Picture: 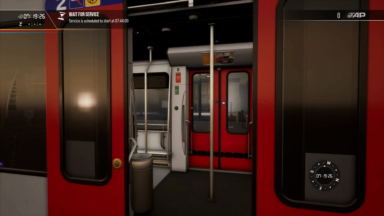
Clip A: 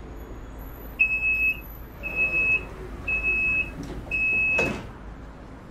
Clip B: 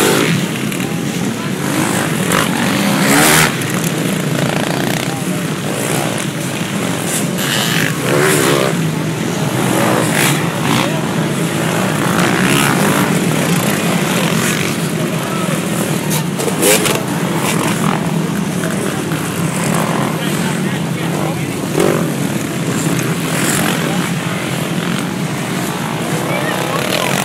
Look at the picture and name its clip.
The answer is A